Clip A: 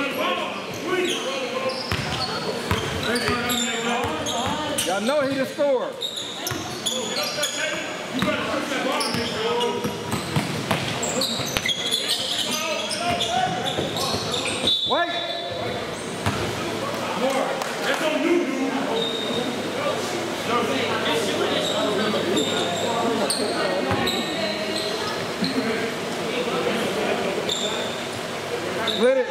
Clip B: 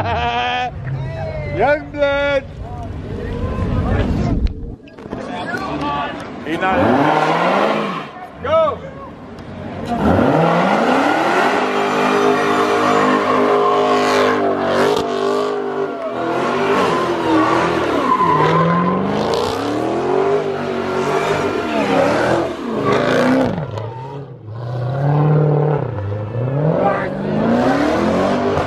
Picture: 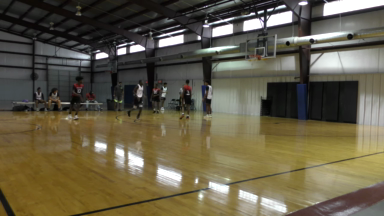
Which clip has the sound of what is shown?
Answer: A